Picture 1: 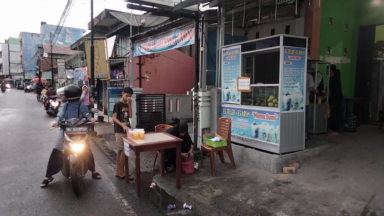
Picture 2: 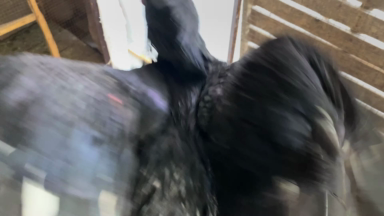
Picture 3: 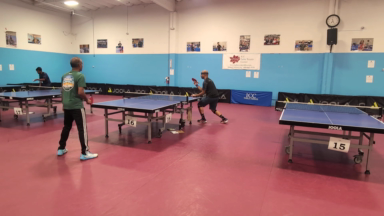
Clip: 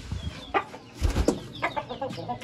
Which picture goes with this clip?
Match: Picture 2